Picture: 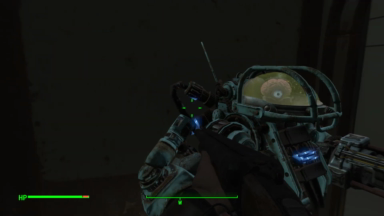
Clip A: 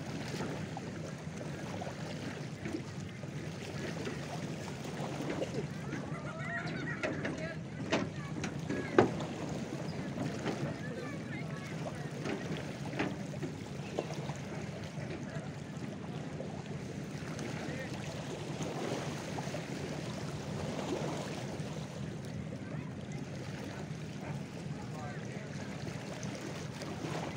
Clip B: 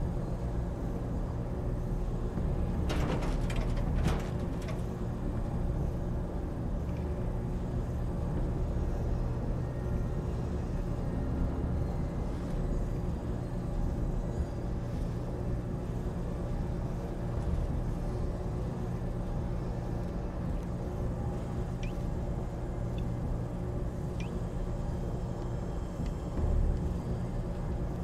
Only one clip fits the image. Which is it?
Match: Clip B